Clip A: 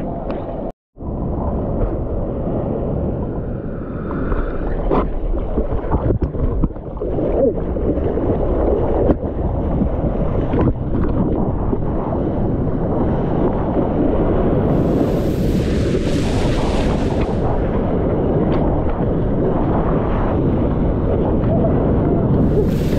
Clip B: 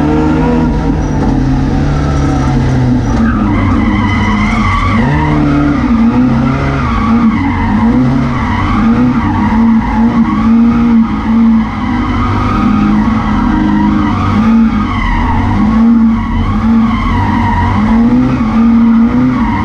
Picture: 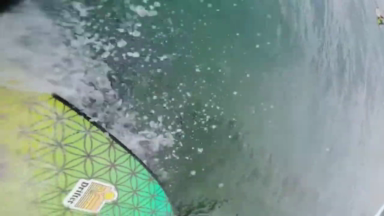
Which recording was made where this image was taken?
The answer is A